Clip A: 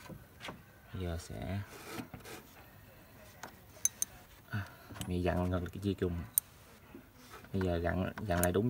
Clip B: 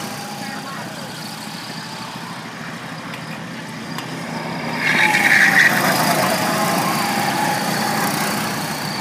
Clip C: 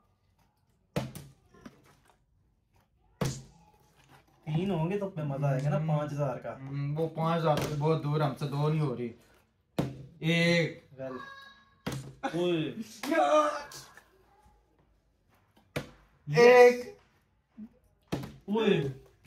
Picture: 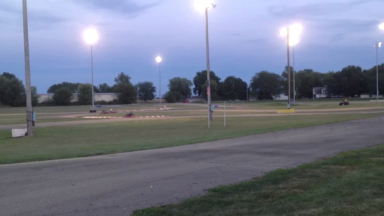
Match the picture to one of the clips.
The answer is B